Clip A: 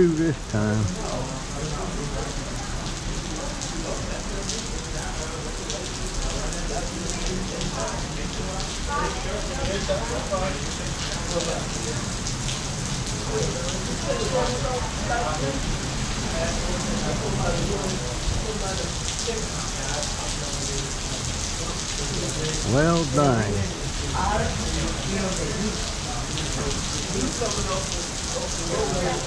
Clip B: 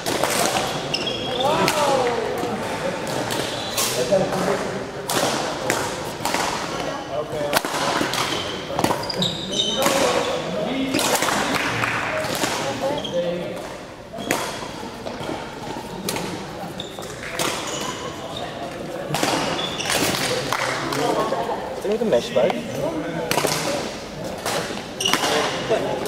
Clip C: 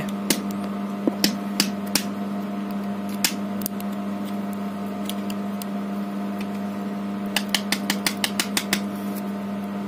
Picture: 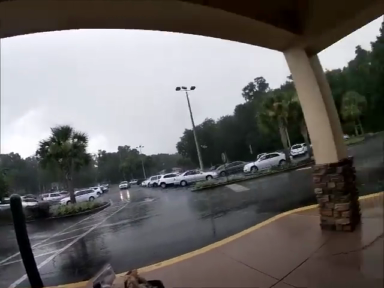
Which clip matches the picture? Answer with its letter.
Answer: A